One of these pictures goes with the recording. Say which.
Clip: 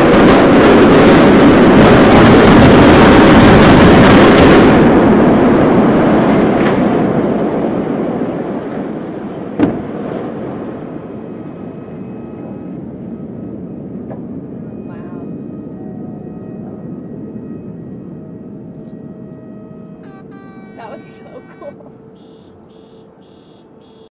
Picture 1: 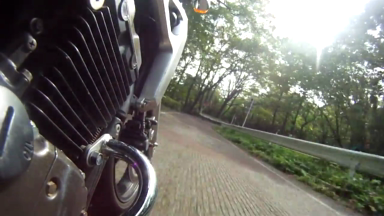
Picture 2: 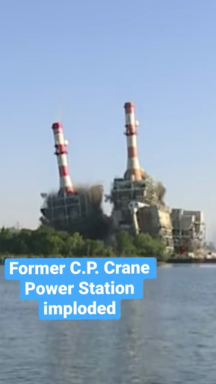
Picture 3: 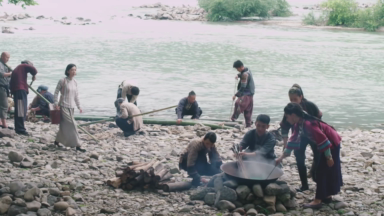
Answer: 2